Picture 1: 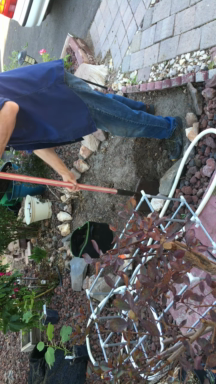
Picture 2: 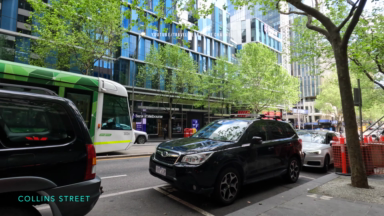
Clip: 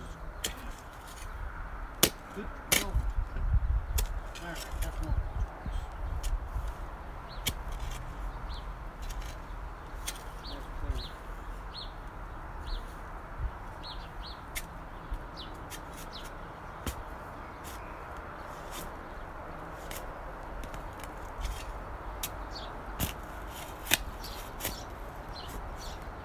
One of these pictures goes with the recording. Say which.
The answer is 1